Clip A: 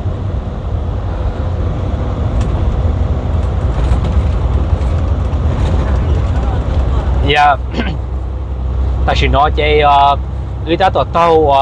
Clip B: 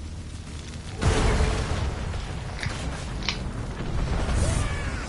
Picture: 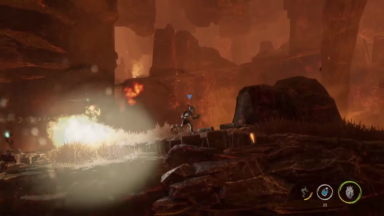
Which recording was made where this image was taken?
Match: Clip B